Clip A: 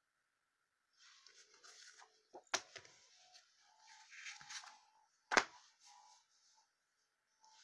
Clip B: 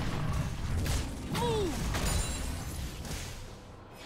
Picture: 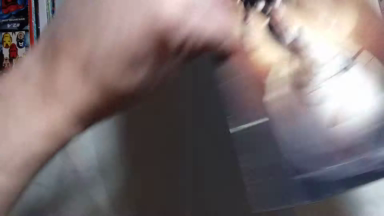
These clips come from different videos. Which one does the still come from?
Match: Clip A